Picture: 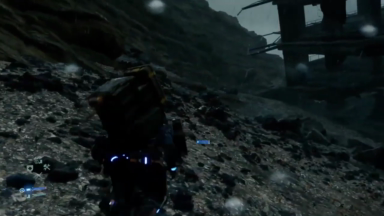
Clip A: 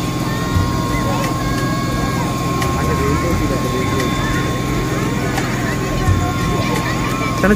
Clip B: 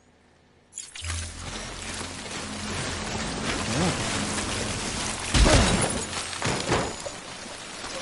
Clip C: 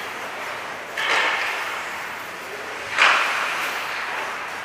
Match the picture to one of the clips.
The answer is B